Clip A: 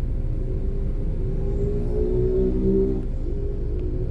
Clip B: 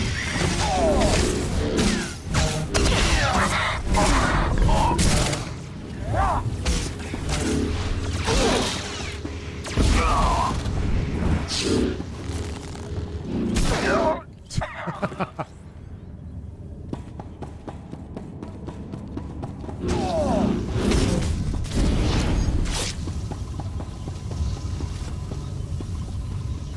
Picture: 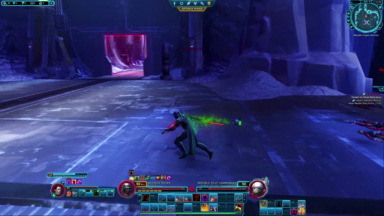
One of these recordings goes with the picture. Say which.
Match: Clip B